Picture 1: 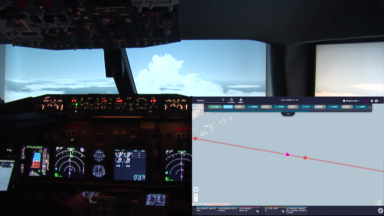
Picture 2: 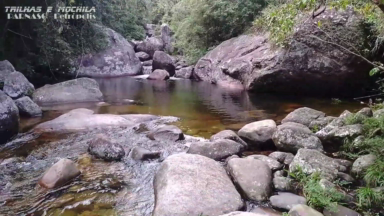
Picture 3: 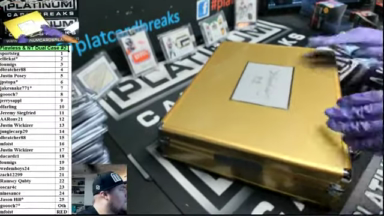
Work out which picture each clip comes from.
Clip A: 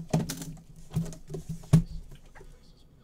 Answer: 3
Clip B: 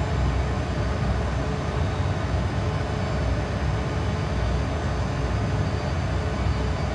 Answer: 1